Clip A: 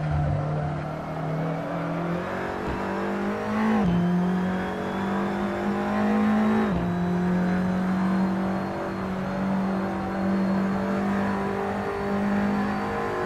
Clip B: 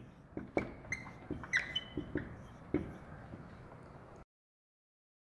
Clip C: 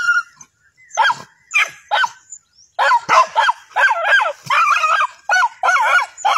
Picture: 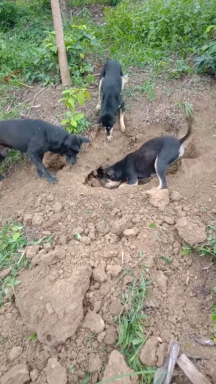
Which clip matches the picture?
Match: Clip C